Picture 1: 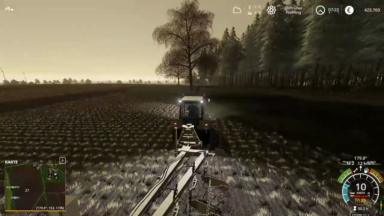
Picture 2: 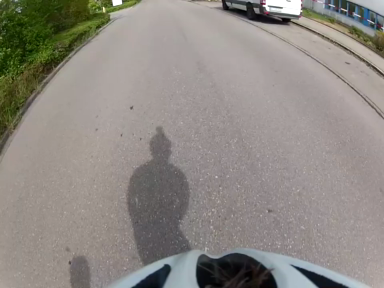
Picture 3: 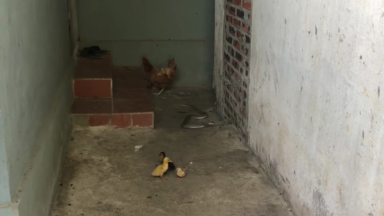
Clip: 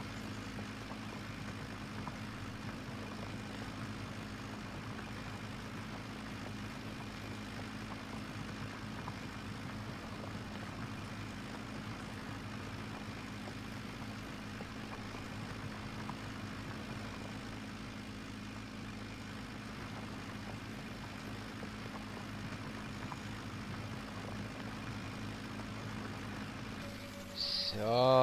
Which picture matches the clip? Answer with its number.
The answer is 1